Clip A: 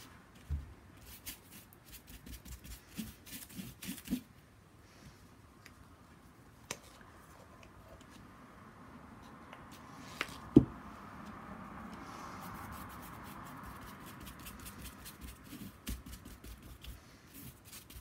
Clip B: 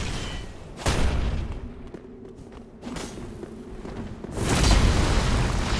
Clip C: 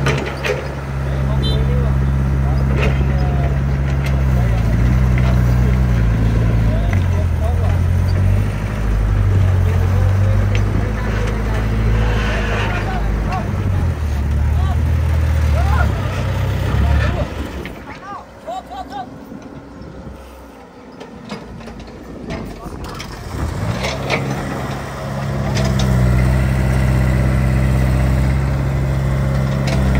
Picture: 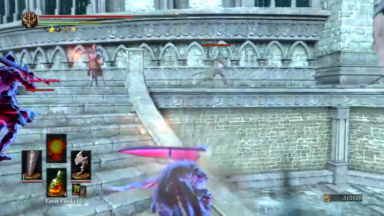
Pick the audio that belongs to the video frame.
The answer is B